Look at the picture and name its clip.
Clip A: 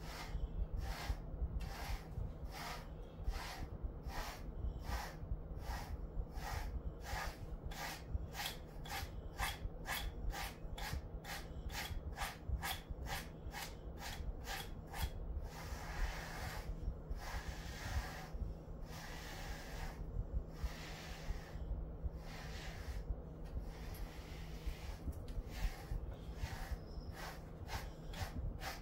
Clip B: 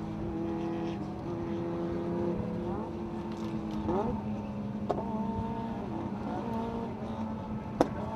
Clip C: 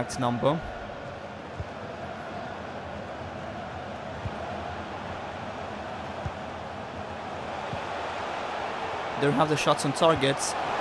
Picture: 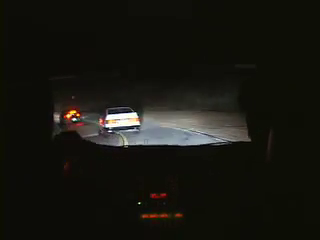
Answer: B